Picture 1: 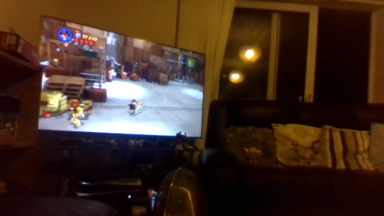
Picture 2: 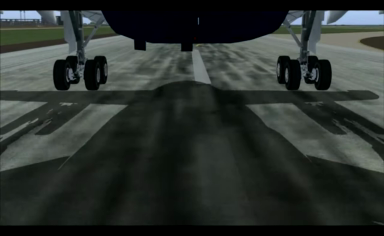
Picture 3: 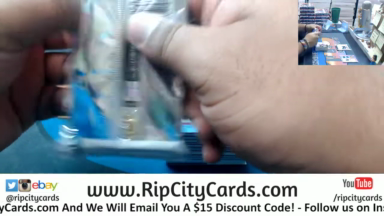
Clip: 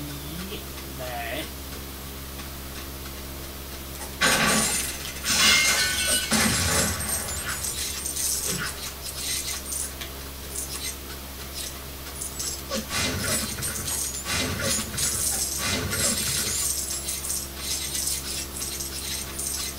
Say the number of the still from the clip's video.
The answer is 1